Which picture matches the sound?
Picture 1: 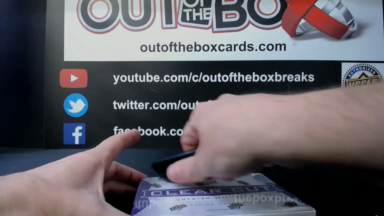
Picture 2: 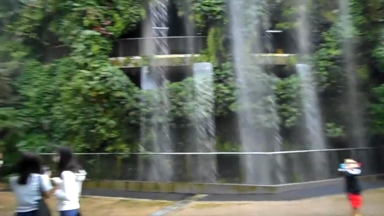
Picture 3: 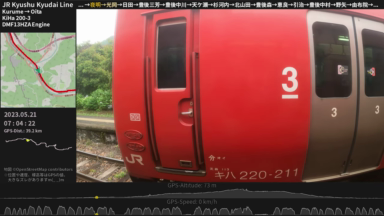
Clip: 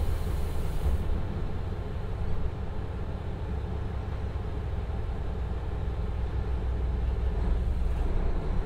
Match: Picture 3